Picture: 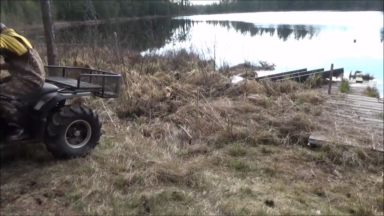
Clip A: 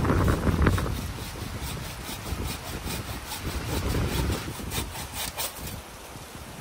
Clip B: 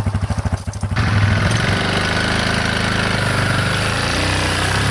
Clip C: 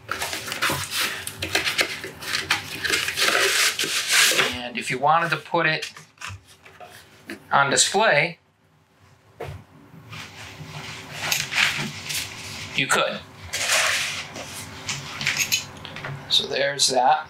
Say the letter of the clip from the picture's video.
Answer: B